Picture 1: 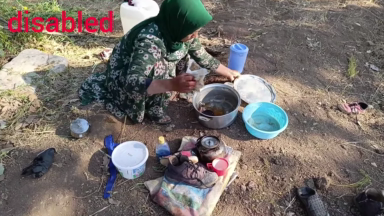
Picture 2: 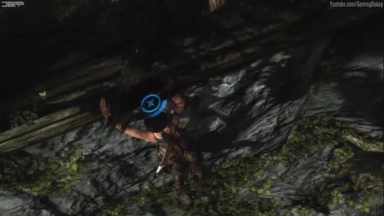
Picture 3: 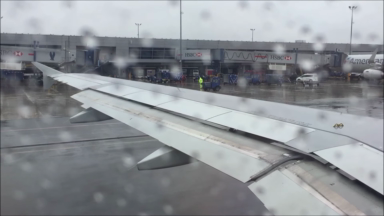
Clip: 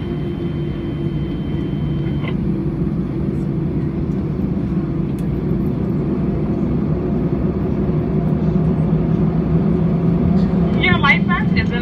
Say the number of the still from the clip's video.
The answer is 3